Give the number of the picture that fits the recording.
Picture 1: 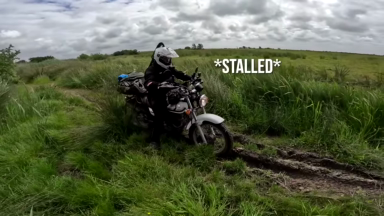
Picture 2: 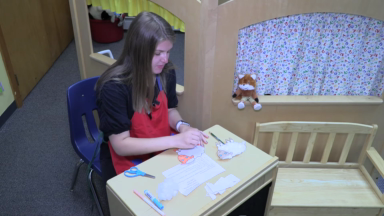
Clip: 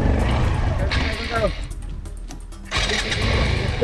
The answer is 1